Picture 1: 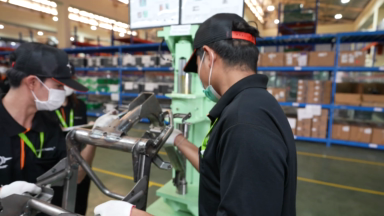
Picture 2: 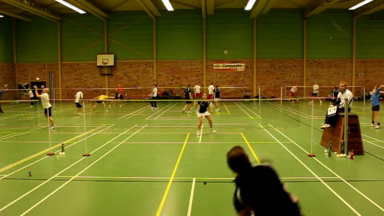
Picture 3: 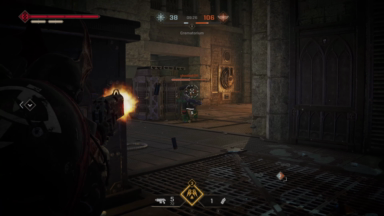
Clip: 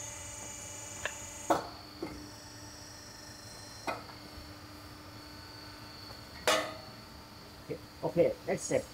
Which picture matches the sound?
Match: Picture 1